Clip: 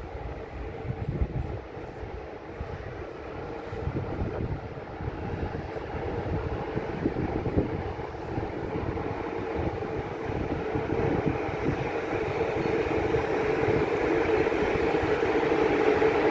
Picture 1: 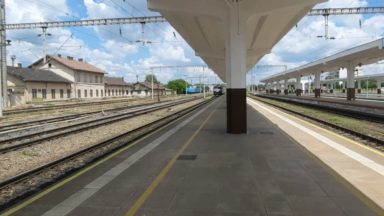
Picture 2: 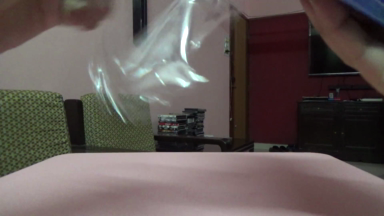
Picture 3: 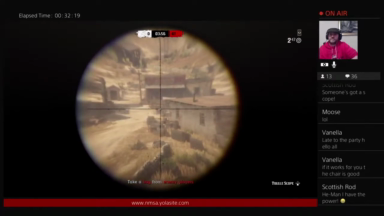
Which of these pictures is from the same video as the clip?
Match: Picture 1